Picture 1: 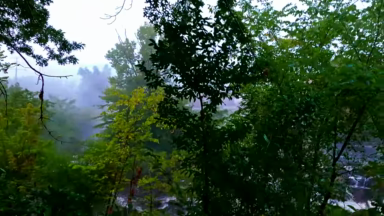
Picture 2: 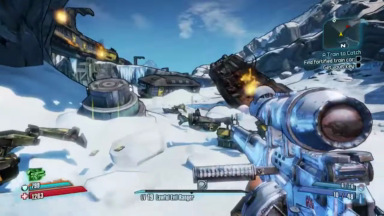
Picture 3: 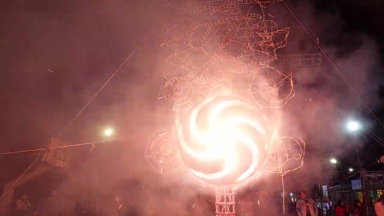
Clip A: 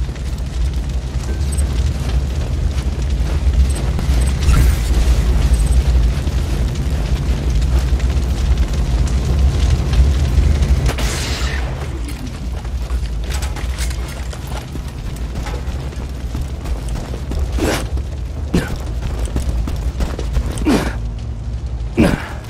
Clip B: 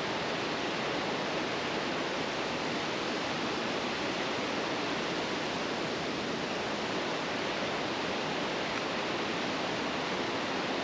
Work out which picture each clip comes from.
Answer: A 2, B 1